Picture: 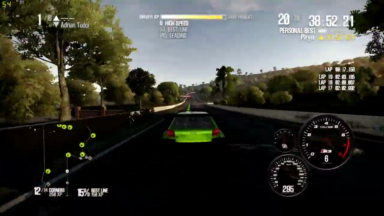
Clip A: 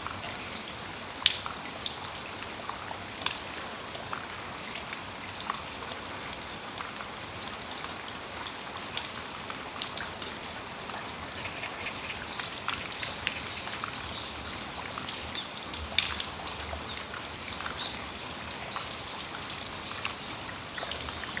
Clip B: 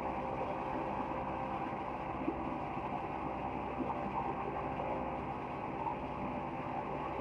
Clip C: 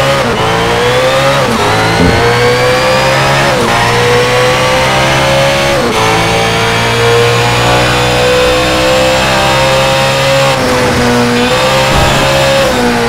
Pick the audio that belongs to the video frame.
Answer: C